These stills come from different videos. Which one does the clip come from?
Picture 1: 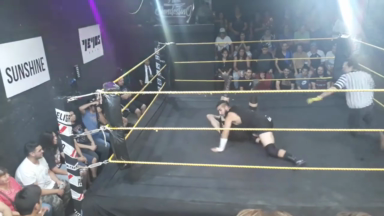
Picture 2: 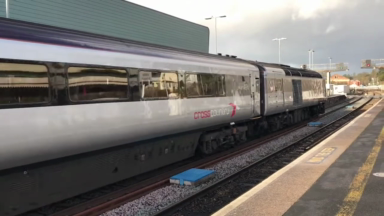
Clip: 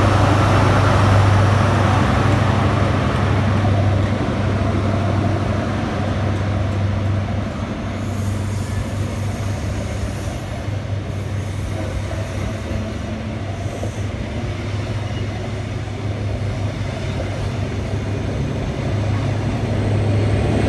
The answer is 2